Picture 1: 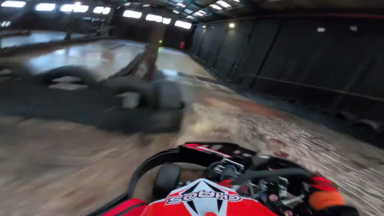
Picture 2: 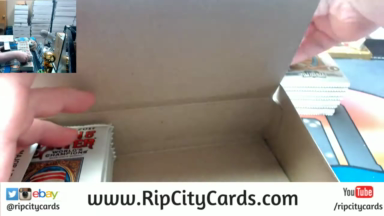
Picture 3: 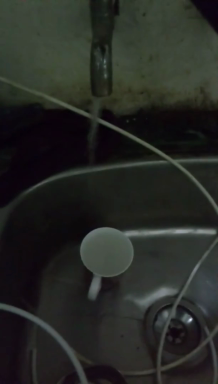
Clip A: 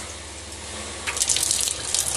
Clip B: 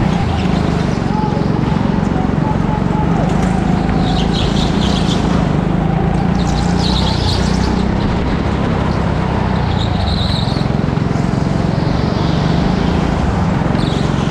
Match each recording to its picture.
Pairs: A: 3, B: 1